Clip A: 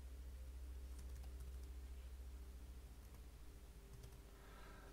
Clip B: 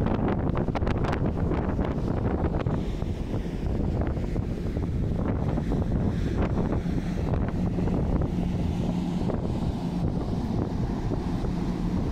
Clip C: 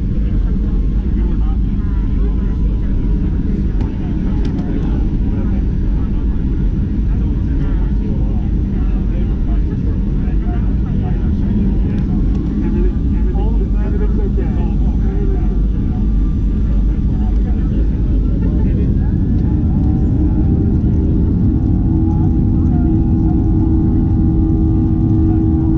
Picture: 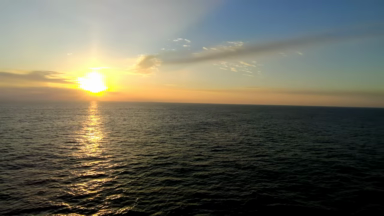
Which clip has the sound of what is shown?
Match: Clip B